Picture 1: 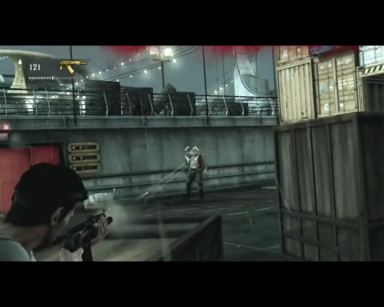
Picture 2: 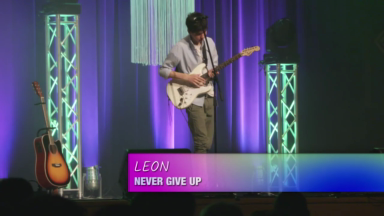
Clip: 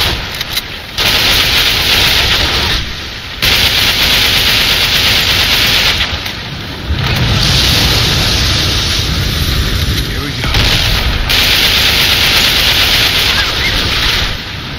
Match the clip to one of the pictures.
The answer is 1